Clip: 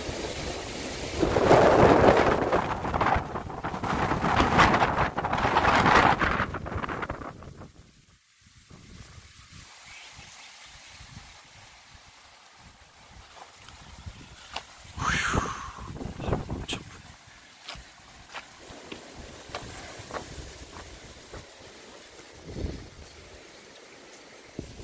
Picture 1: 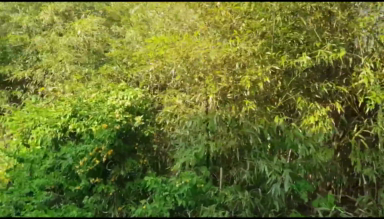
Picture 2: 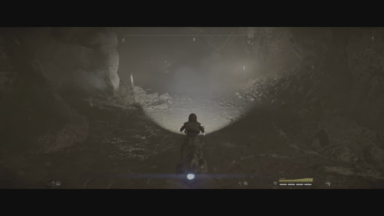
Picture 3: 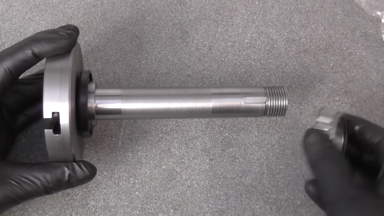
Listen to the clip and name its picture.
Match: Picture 1